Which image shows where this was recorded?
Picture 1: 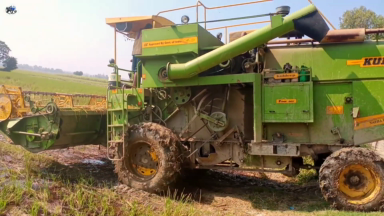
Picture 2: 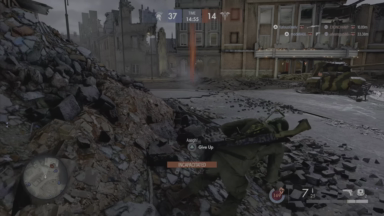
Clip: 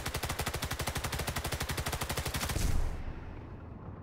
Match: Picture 2